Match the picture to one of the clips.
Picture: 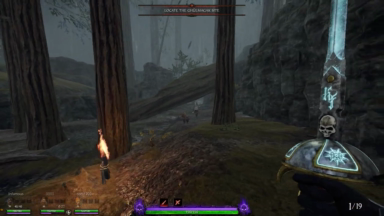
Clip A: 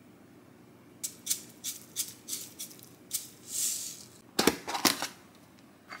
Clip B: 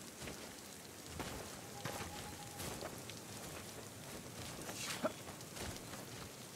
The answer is B